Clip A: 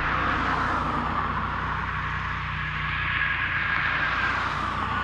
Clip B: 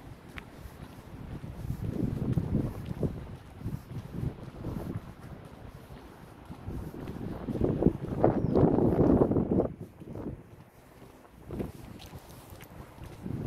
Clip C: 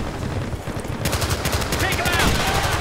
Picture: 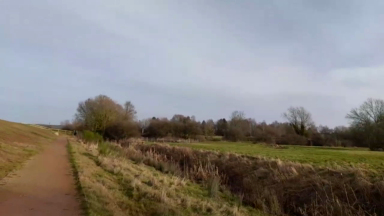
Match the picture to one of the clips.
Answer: B